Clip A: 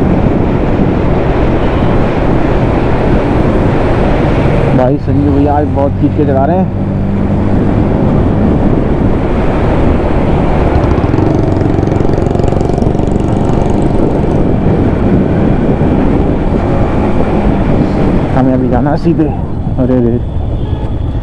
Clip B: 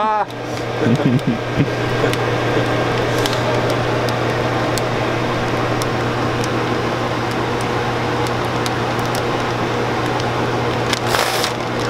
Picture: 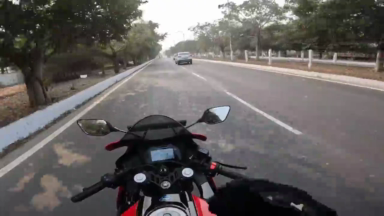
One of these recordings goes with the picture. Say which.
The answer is A